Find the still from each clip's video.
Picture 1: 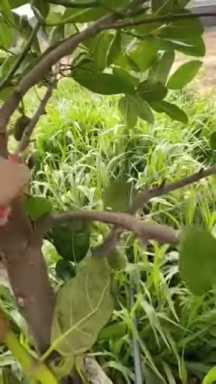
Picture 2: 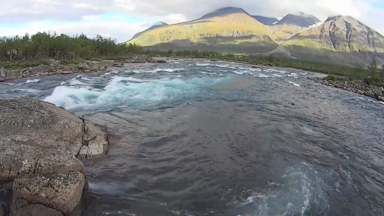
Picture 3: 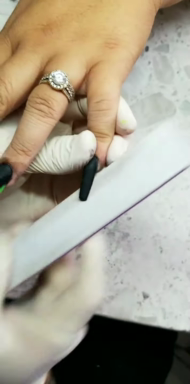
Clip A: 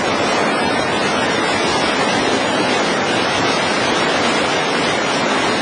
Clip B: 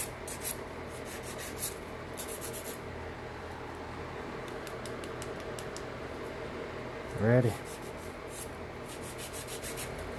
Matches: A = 2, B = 3